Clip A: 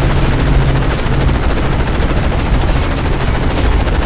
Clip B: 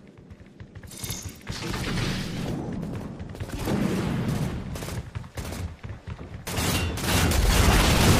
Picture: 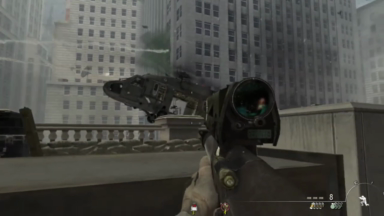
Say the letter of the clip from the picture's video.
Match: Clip A